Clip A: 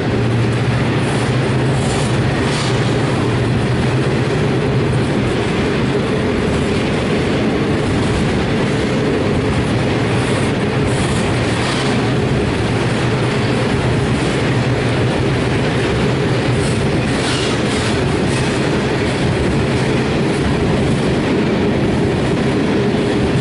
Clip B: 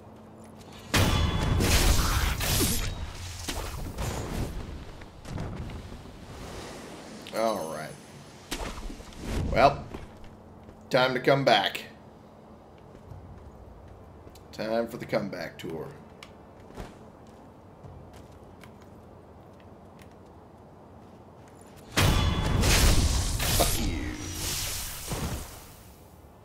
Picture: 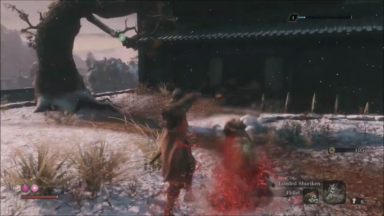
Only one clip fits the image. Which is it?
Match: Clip B